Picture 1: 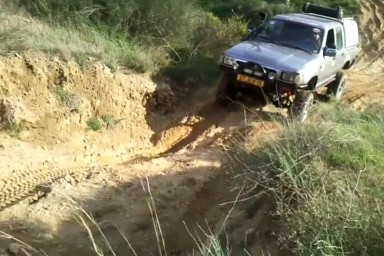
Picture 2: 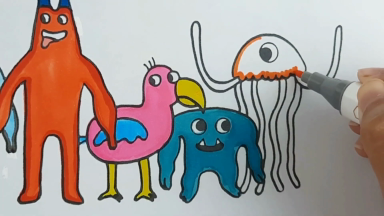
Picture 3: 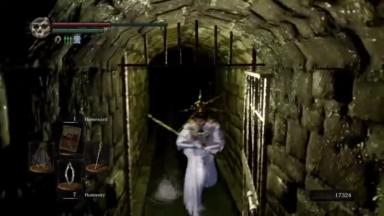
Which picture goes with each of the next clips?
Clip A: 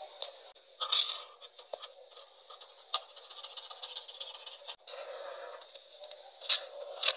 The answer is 2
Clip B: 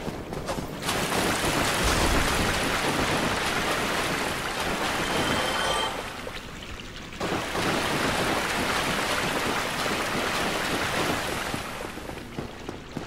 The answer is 3